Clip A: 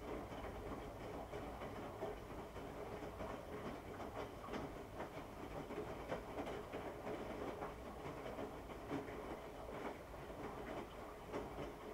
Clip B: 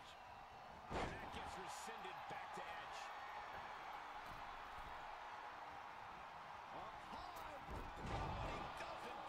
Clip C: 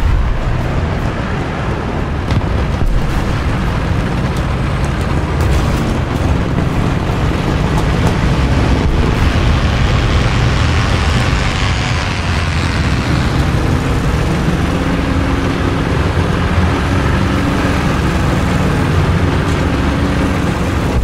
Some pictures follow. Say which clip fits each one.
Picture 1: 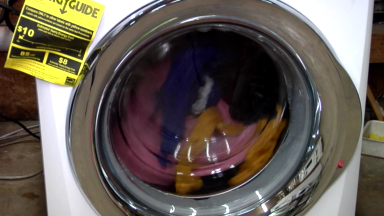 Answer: A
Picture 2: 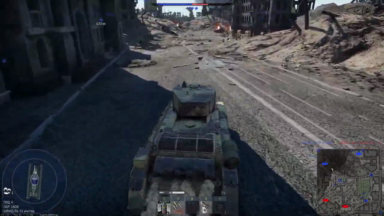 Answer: C